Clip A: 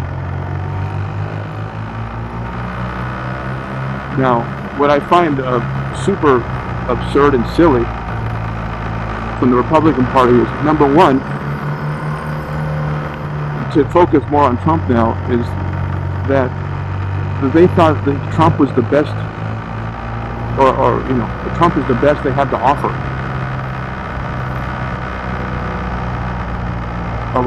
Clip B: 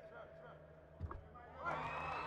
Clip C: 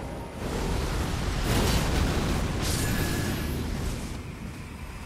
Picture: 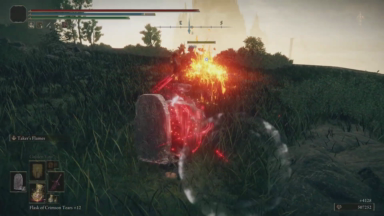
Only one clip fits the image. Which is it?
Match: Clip C